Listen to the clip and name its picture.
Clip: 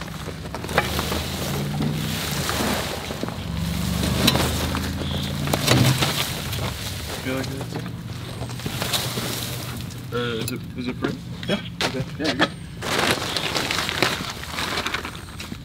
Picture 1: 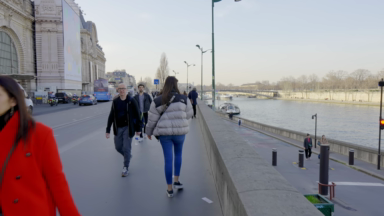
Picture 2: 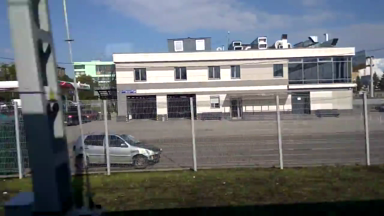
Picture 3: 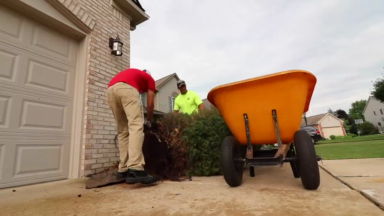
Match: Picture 3